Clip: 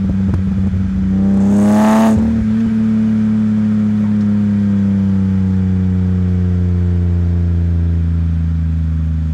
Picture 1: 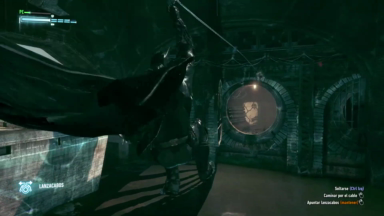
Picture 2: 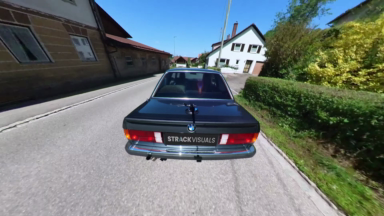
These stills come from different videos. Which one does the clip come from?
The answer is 2